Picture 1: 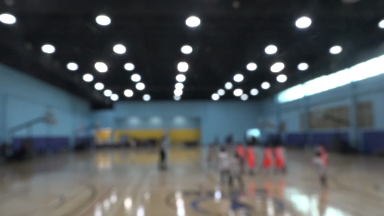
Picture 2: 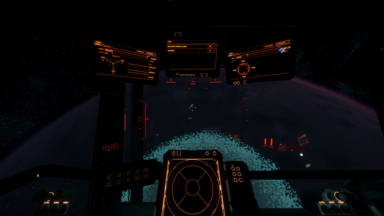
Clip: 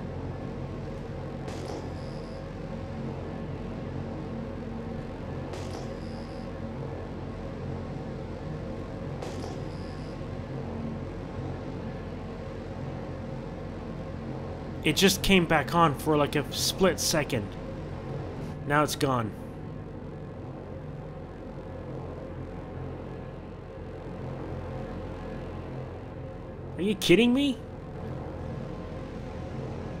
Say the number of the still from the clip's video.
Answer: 2